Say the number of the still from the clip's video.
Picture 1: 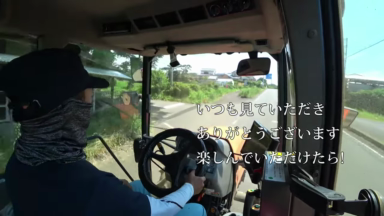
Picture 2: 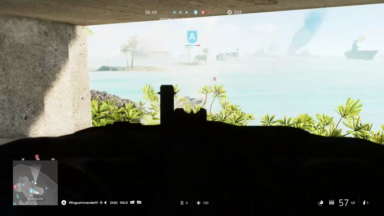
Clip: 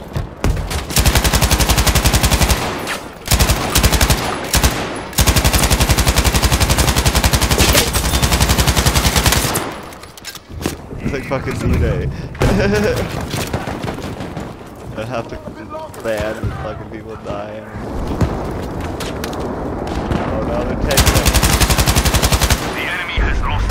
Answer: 2